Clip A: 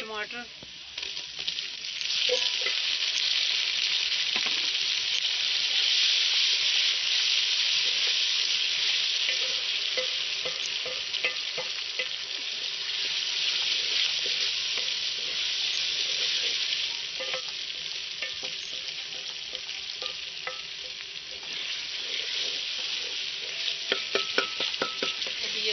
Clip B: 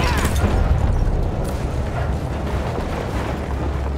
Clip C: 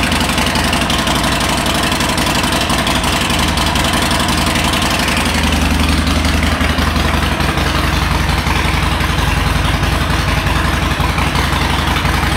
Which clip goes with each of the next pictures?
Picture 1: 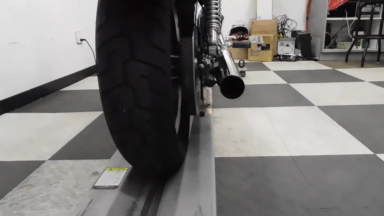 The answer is C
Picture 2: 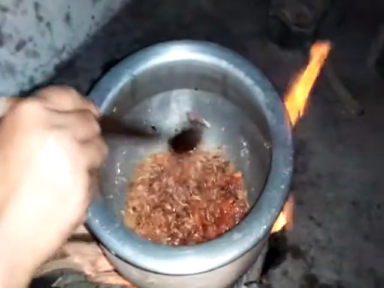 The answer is A